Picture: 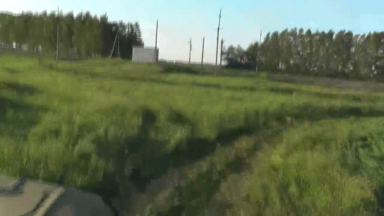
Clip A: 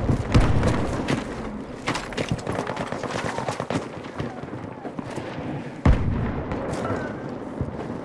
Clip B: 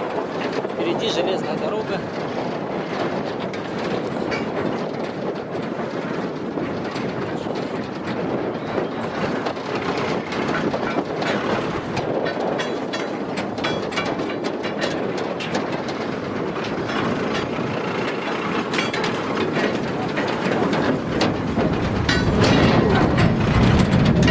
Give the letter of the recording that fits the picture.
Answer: B